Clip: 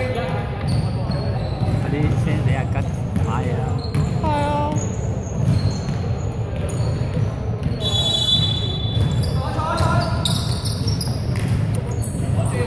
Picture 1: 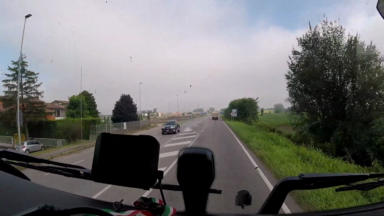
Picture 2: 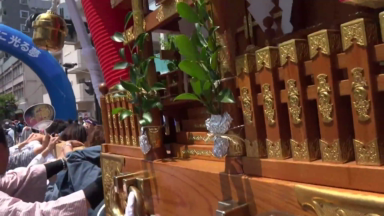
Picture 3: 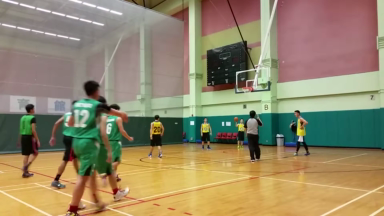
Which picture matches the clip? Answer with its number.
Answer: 3